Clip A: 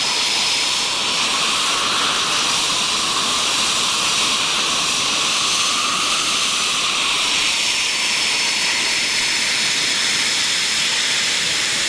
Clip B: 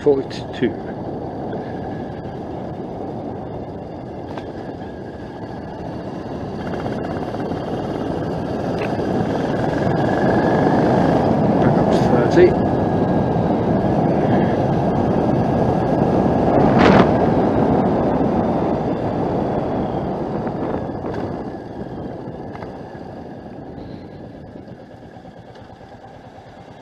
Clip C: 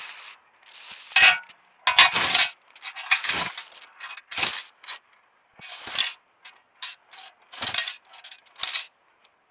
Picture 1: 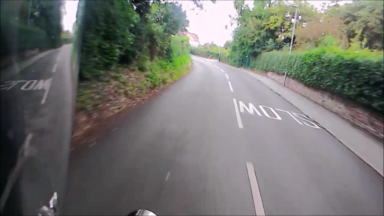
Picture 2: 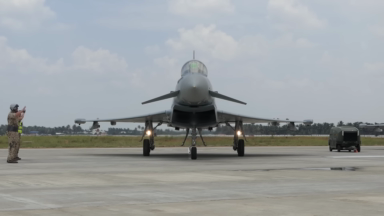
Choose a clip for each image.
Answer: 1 B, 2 A